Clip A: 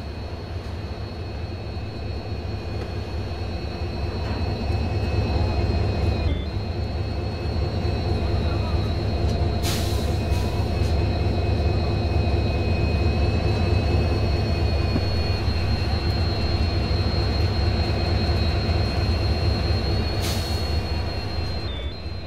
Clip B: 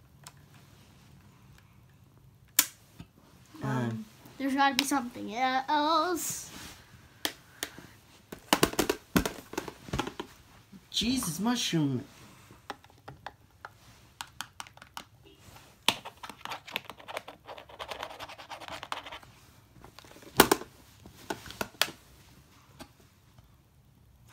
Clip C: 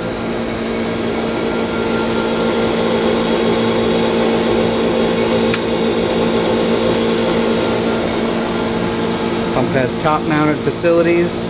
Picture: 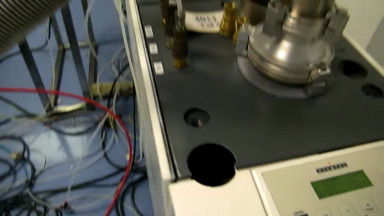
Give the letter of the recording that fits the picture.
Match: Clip C